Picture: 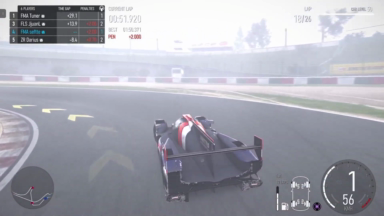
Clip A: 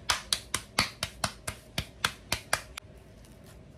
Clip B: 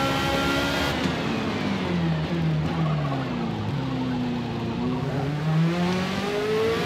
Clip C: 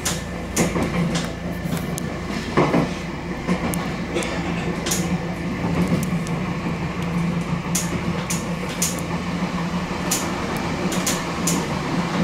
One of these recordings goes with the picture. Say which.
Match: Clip B